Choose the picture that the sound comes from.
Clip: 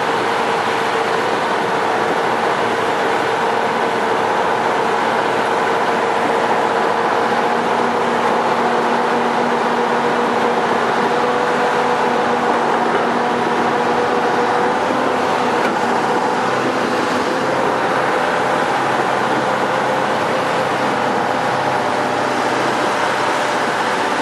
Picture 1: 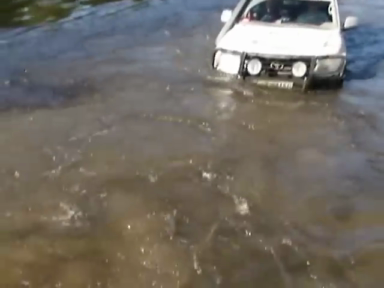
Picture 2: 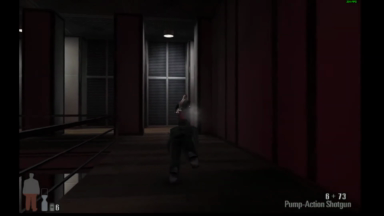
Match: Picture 1